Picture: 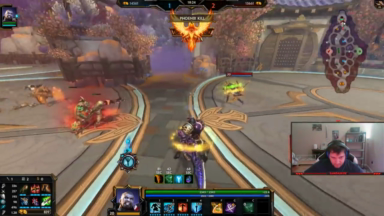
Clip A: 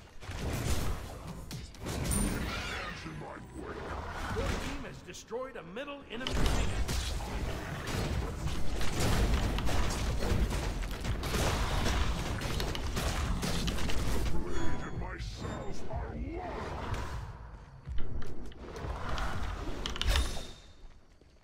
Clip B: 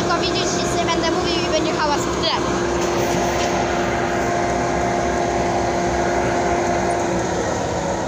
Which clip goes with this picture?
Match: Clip A